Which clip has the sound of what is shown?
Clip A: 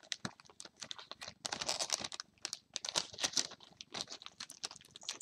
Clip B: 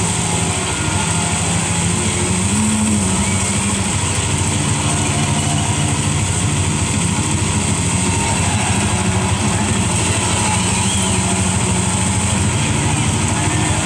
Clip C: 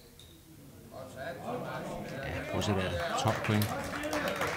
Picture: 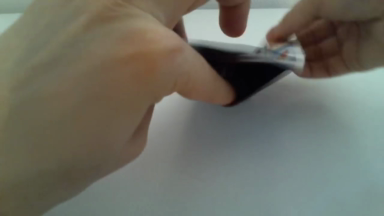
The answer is A